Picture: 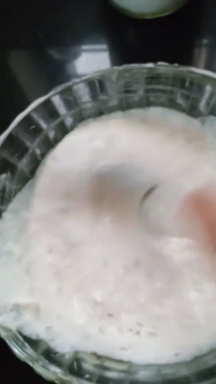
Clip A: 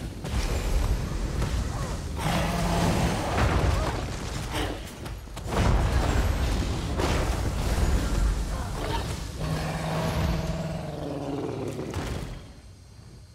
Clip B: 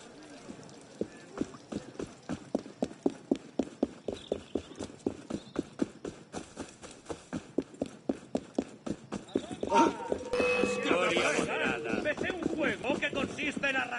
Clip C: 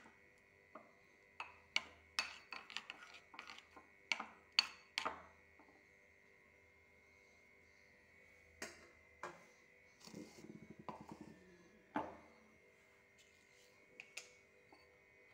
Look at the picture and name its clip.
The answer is C